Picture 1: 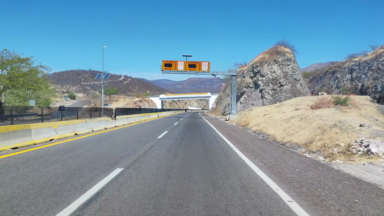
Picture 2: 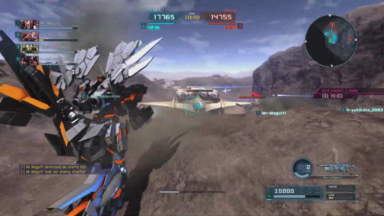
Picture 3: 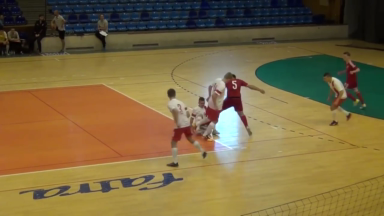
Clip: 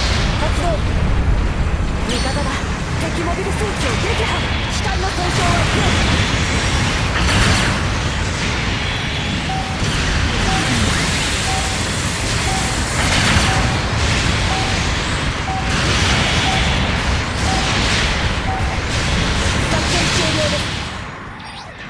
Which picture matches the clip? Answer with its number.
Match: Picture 2